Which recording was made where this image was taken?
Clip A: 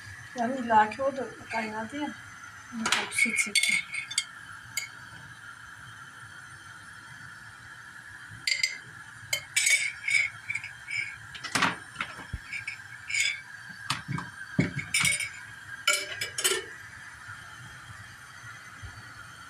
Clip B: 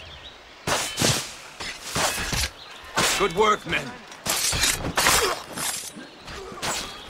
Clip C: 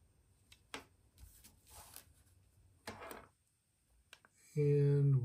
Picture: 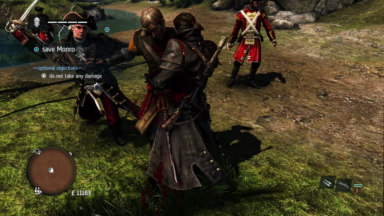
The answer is B